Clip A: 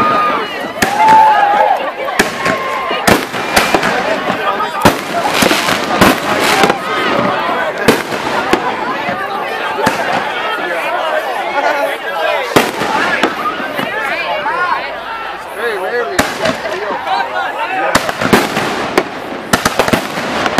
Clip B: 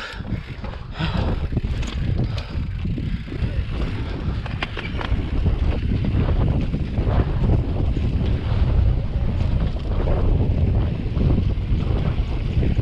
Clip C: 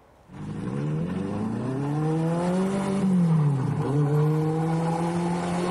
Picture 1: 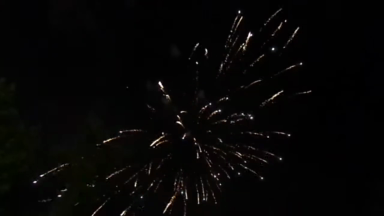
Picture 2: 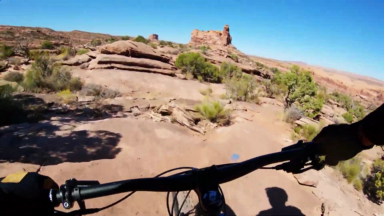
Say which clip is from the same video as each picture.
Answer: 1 A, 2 B